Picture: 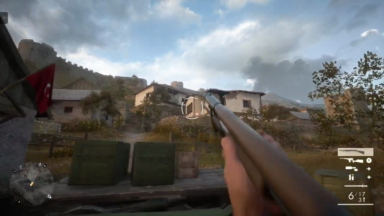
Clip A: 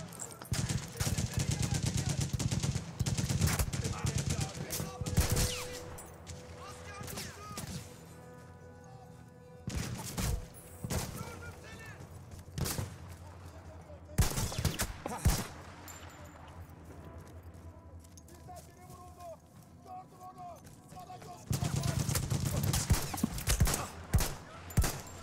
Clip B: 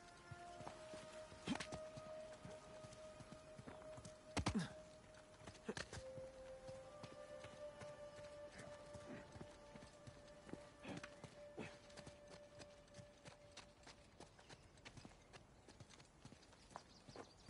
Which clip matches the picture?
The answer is A